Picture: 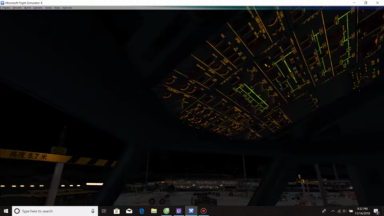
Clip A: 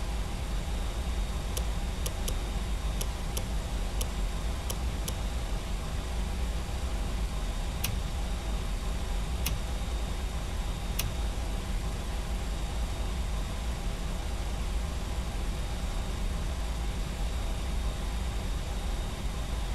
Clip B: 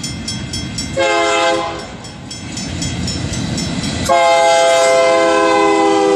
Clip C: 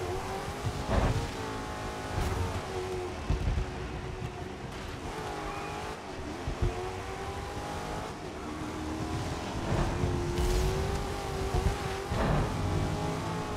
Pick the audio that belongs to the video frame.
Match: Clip A